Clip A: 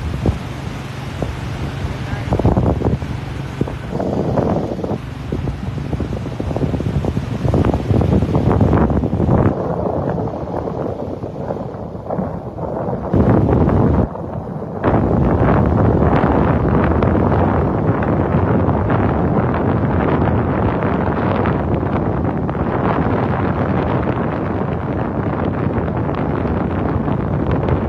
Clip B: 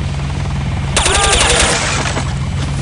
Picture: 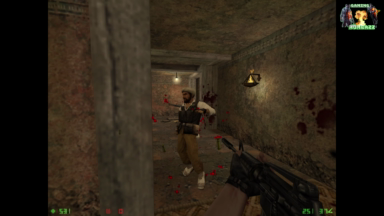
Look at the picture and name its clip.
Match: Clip B